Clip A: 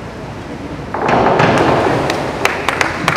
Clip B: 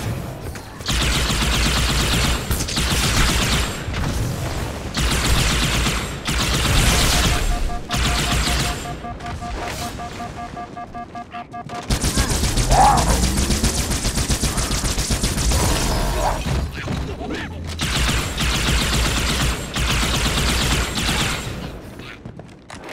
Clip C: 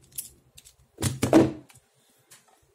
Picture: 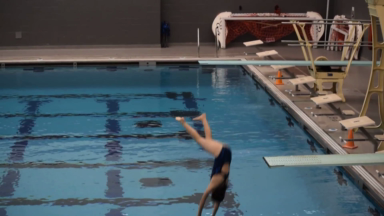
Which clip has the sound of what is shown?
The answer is A